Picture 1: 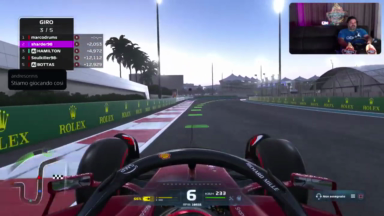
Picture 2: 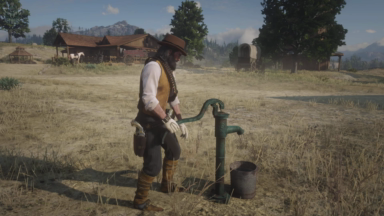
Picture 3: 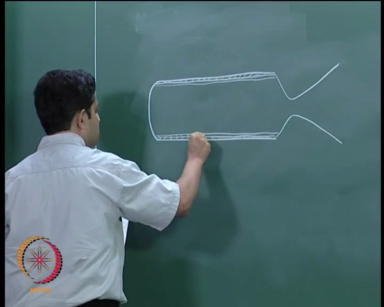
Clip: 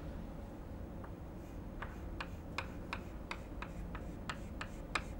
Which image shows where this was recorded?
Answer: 3